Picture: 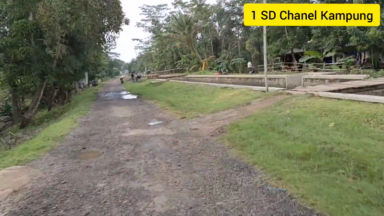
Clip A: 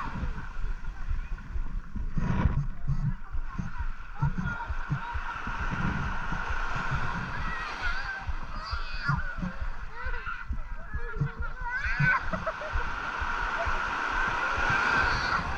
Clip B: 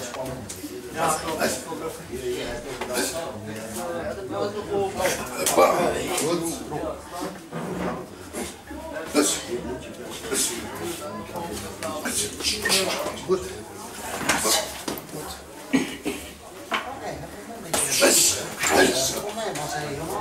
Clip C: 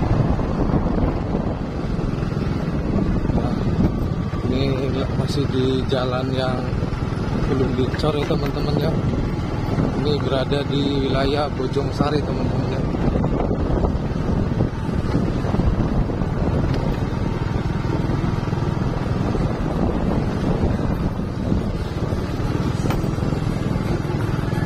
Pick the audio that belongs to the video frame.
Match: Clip C